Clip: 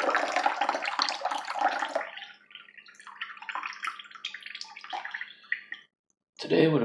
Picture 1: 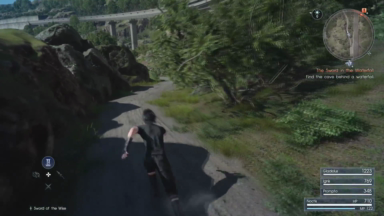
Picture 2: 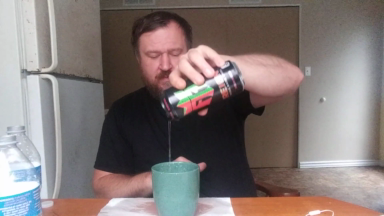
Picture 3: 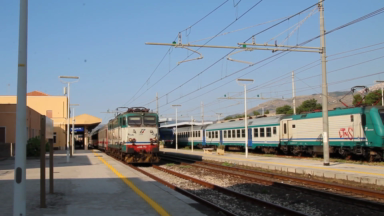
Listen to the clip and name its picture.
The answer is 2